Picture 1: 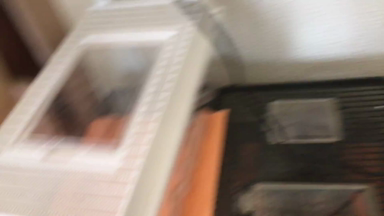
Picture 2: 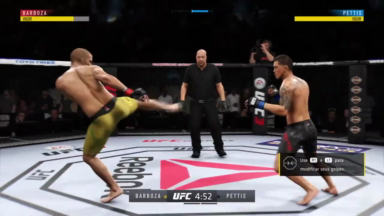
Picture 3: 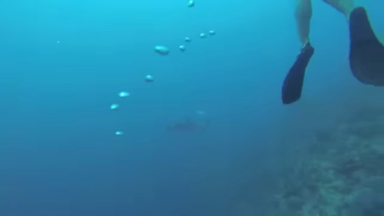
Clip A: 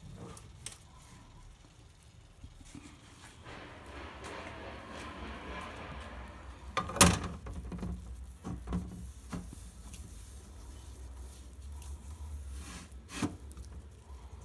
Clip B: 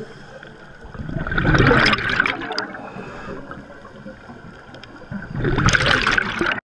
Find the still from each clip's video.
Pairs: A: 1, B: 3